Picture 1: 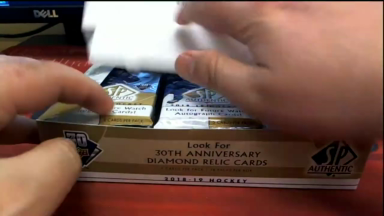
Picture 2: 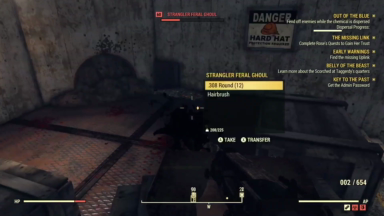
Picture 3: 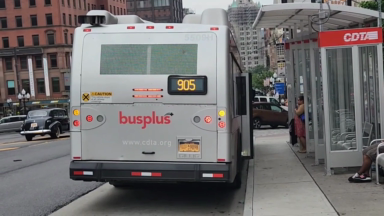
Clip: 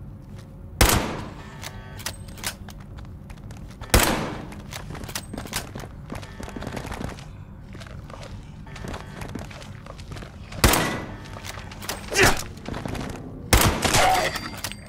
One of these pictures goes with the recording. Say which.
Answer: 2